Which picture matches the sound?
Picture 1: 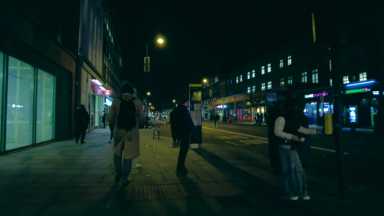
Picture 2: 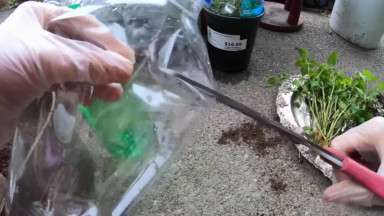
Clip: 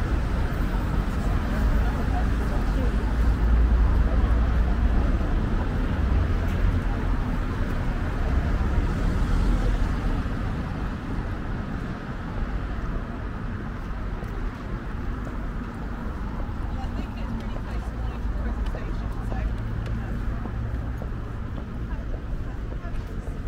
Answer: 1